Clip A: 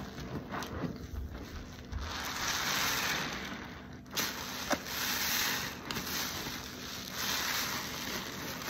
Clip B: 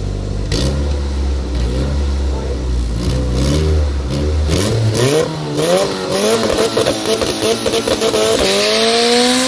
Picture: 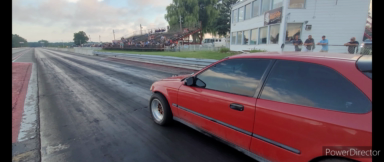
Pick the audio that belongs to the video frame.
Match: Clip B